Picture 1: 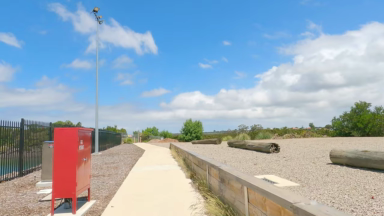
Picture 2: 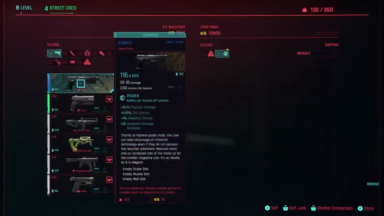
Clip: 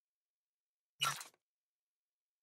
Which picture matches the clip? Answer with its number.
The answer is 2